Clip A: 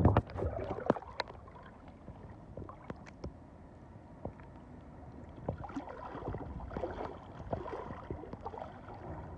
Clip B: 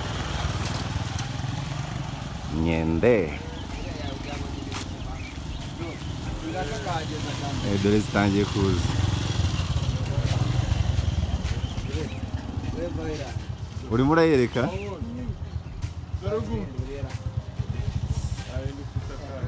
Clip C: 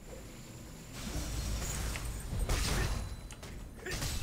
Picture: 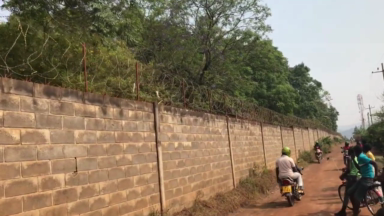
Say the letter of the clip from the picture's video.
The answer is B